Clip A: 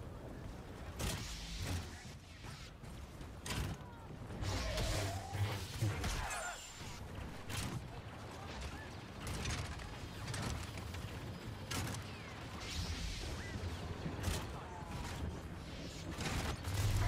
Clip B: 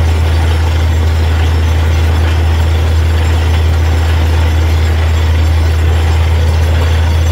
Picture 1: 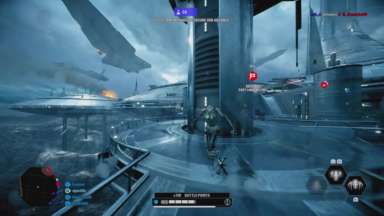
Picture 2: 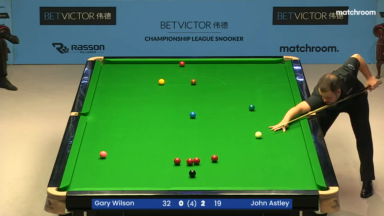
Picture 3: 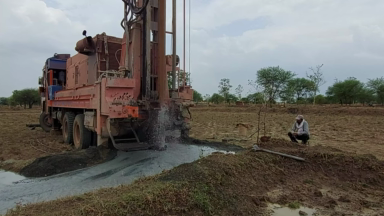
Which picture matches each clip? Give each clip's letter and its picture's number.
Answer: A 1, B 3